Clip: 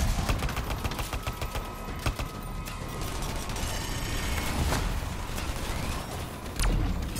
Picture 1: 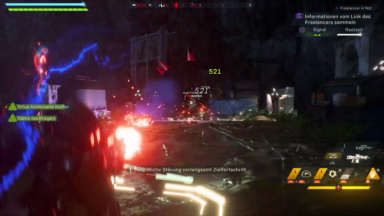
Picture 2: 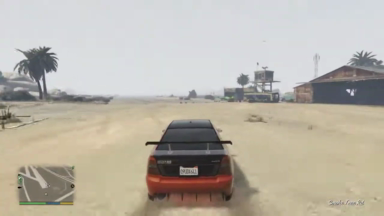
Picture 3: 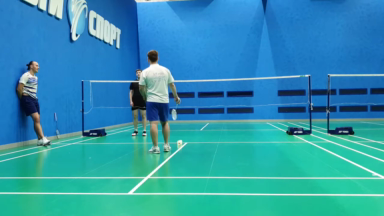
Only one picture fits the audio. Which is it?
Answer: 1